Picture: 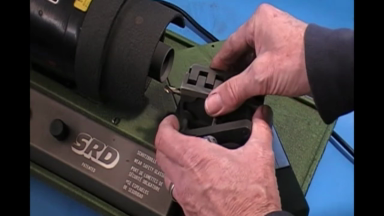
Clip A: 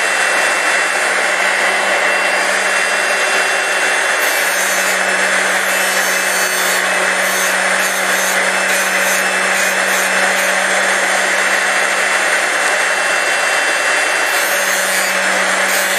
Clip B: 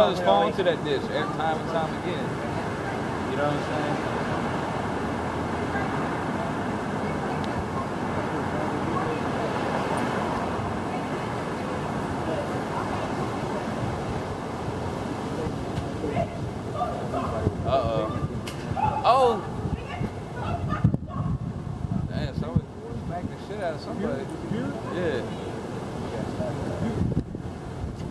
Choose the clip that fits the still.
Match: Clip A